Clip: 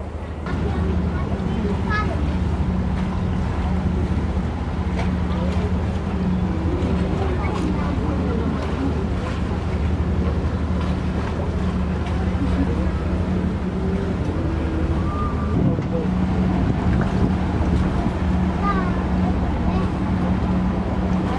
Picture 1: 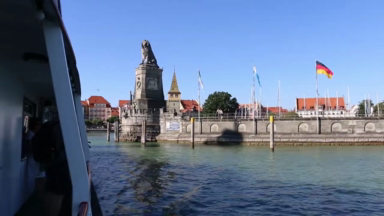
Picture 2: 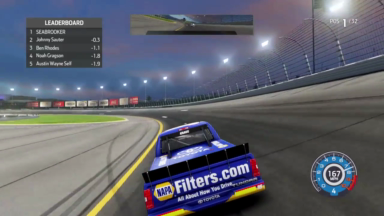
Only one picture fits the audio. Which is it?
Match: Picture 1